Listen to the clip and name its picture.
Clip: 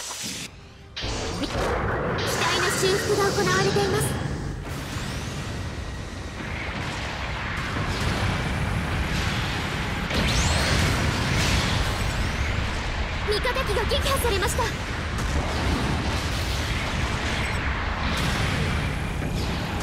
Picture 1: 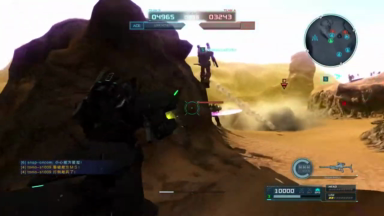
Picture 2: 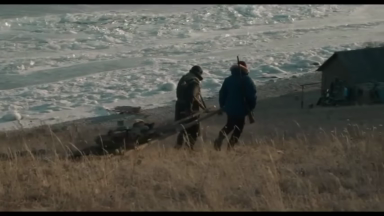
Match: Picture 1